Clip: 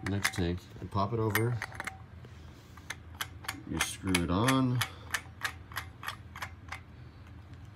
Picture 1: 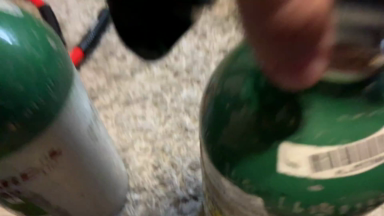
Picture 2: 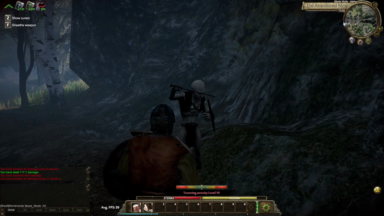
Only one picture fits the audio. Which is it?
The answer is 1